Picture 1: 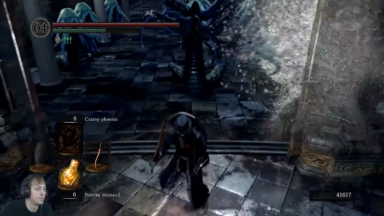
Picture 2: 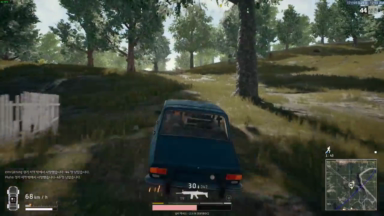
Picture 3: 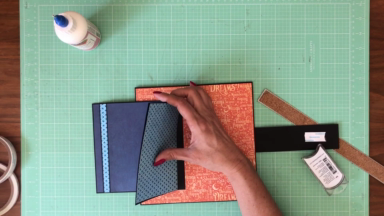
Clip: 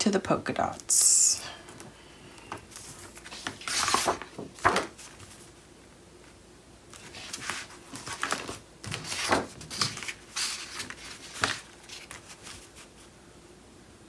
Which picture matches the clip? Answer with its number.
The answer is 3